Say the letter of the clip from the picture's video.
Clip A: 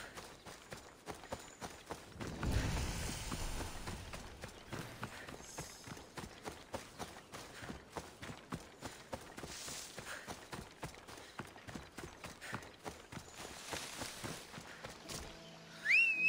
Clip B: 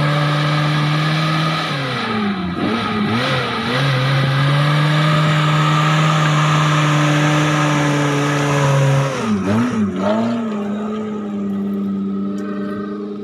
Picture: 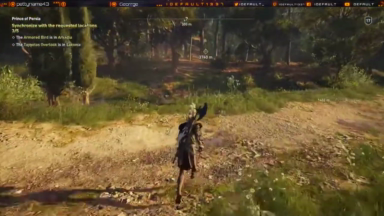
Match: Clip A